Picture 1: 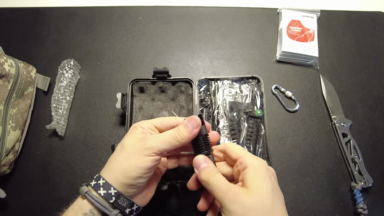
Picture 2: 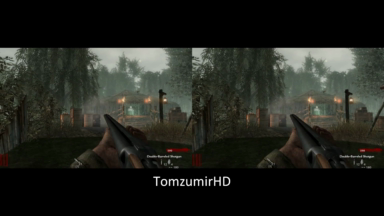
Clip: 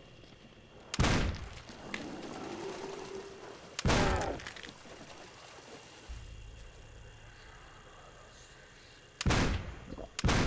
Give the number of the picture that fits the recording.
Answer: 2